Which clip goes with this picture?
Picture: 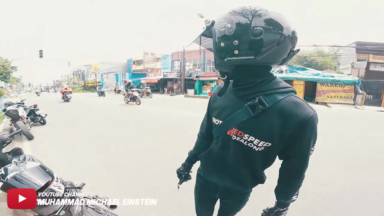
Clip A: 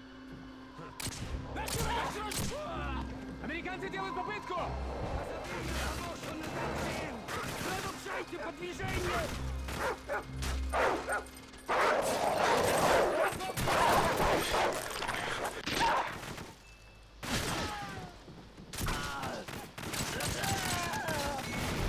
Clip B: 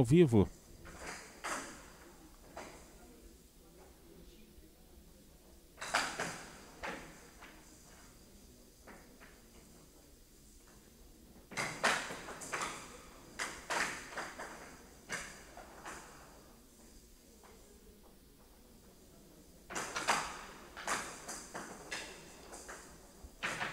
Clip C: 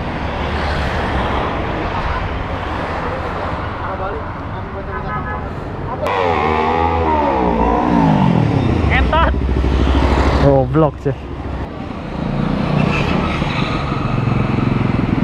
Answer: C